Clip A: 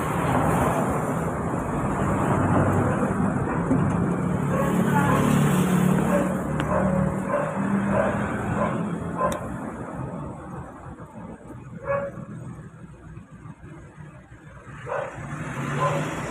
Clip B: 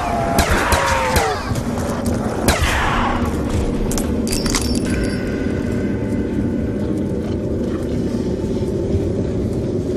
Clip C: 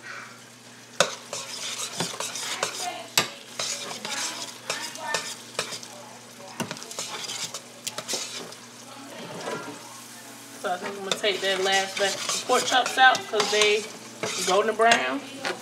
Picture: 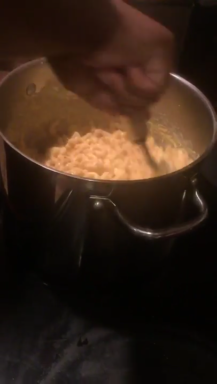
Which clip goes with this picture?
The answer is C